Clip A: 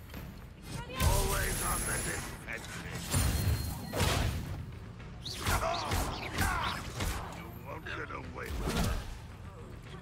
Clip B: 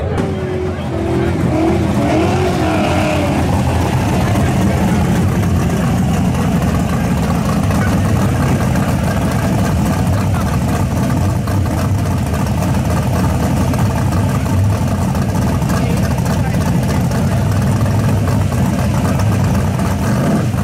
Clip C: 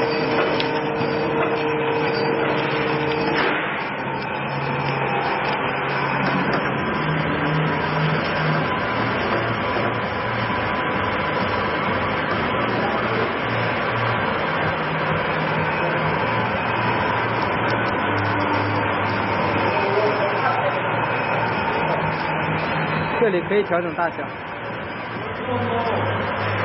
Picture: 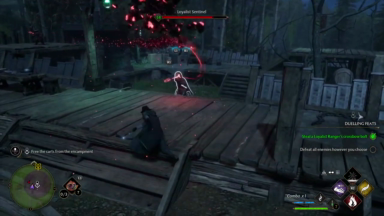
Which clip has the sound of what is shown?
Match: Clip A